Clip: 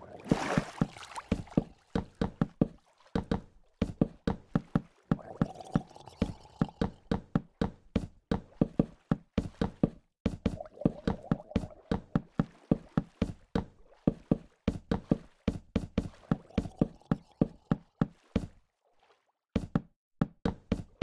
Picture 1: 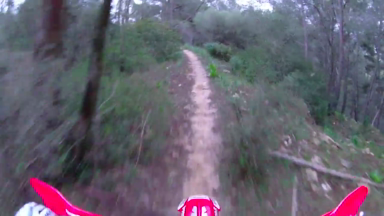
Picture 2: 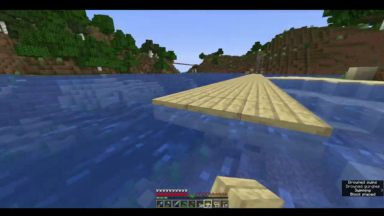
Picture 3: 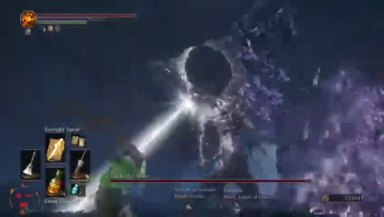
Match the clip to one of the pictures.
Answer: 2